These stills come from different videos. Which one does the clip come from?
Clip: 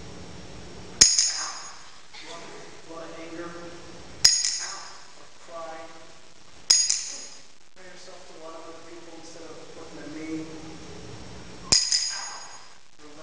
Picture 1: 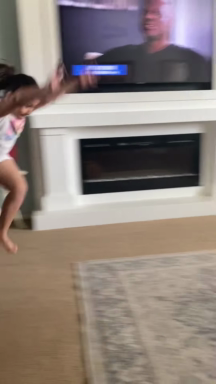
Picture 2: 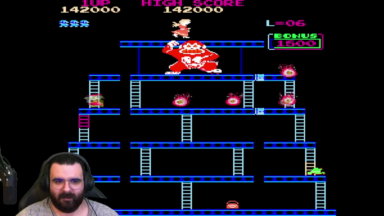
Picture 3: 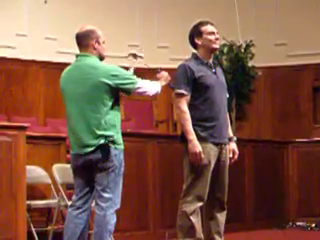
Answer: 3